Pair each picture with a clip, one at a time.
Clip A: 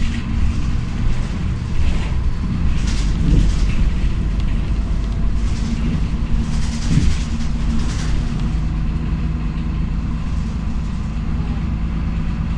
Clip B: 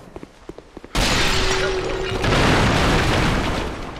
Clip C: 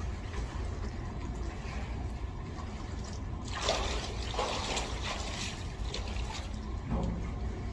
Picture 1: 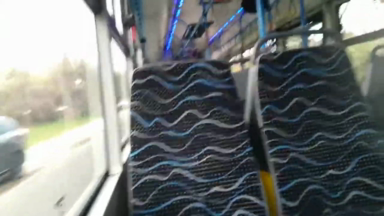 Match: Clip A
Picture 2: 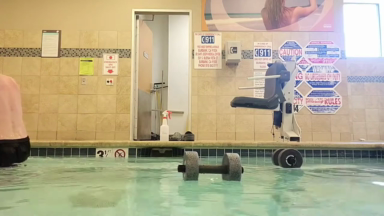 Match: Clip C